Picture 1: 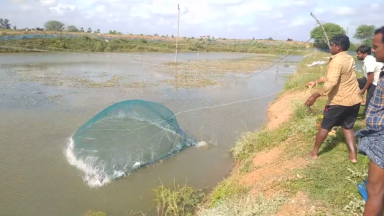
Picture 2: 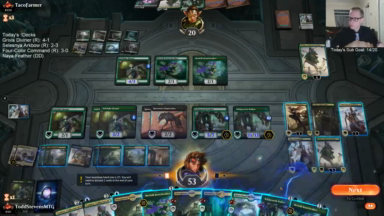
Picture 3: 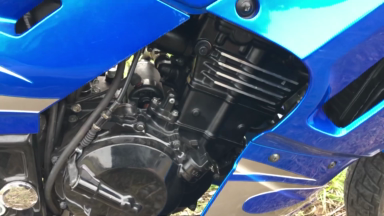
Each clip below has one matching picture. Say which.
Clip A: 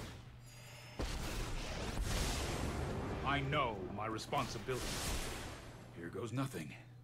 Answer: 2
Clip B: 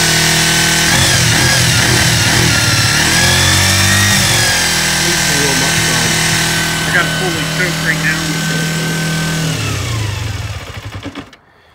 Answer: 3